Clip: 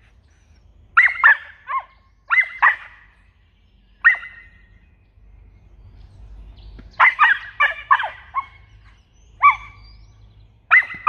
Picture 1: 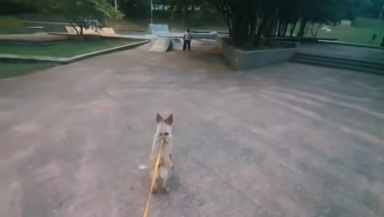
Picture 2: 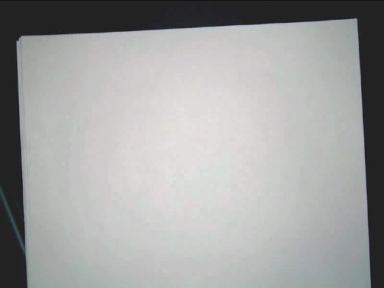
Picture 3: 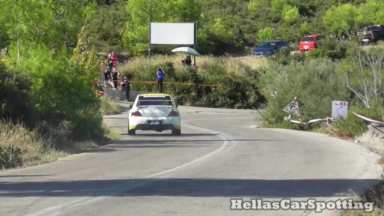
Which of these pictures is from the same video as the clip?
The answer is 1